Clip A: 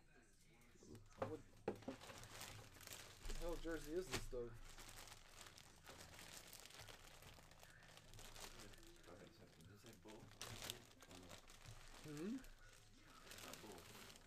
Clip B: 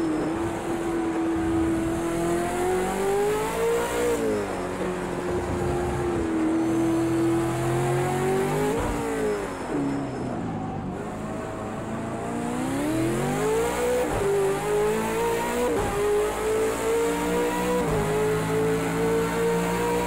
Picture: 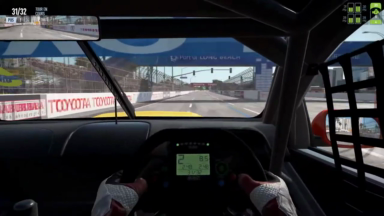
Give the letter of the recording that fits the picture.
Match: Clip B